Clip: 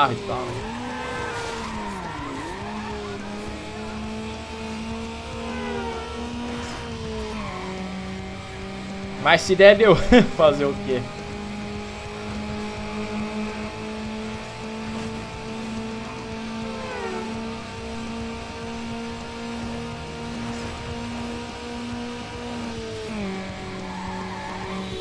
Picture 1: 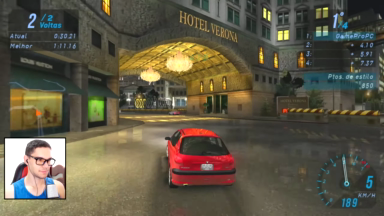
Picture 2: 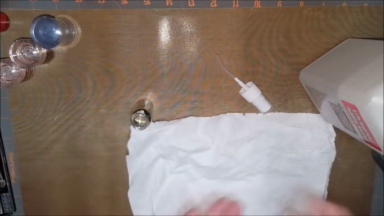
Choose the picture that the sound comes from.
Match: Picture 1